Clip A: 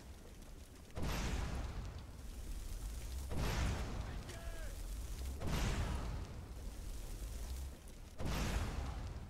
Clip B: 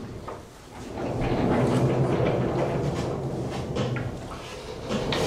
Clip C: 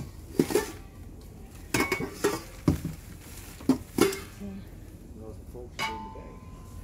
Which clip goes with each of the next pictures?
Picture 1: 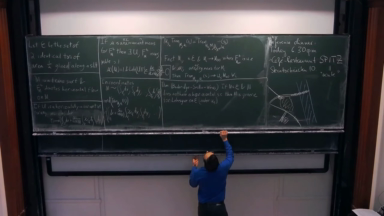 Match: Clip B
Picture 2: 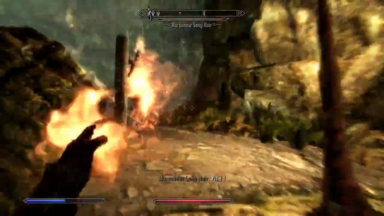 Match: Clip A